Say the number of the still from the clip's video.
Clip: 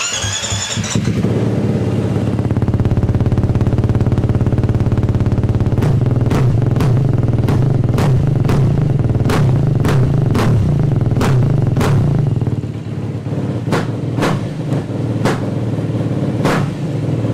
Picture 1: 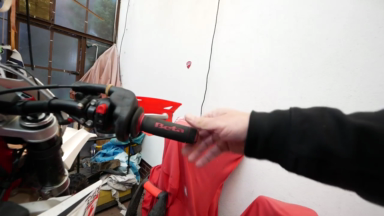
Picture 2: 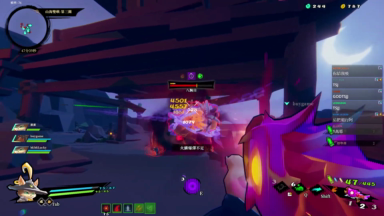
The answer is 1